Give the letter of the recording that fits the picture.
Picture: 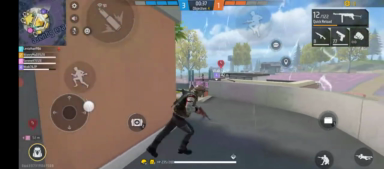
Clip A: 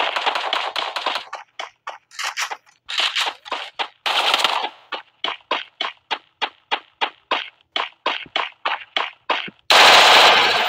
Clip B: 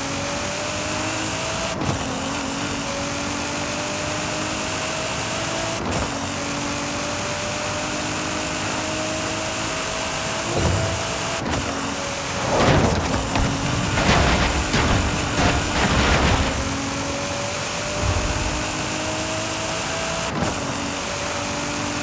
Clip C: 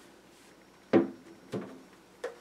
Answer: A